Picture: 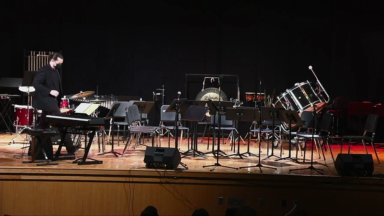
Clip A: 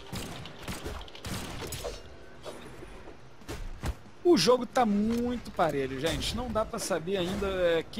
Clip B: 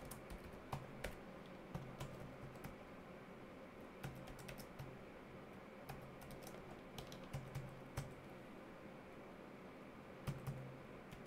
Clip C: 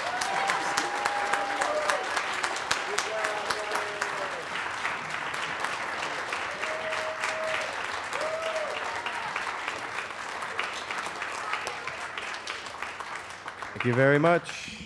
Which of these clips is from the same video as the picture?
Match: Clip C